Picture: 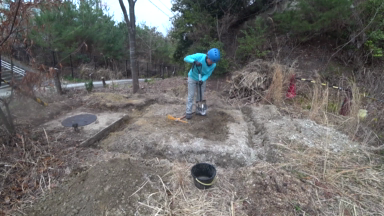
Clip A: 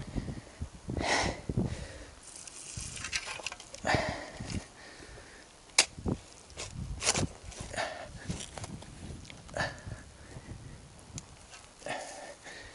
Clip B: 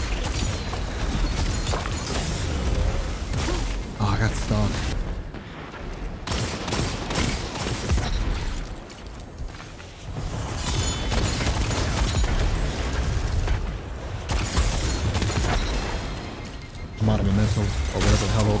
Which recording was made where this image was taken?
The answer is A